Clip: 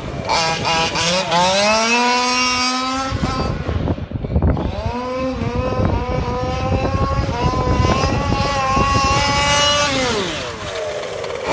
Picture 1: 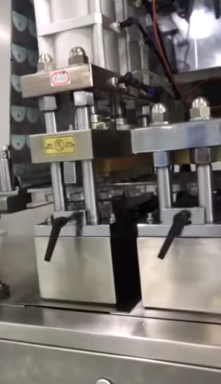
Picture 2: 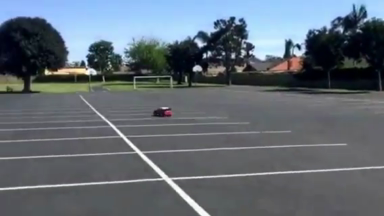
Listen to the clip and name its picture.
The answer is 2